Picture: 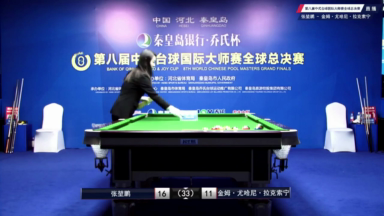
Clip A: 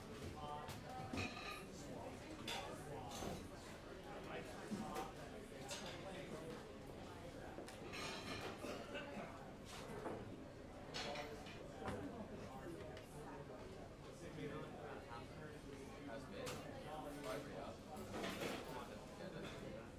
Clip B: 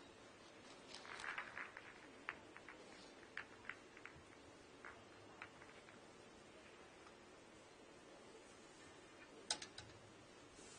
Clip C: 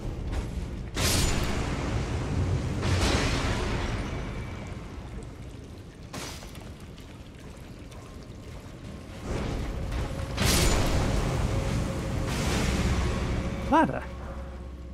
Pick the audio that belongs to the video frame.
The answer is B